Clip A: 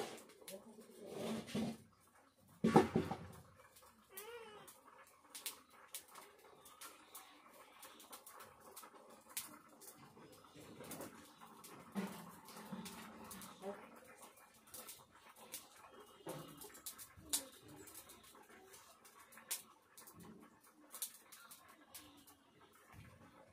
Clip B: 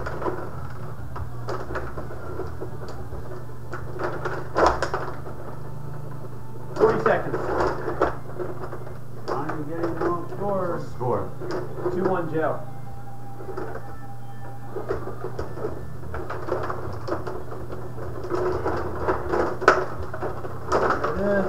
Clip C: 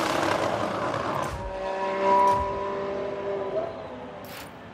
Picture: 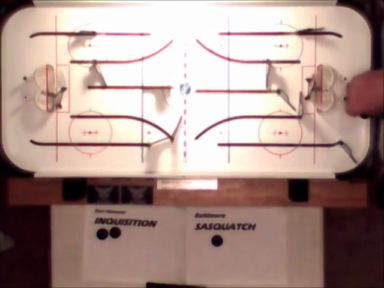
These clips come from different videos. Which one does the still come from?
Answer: B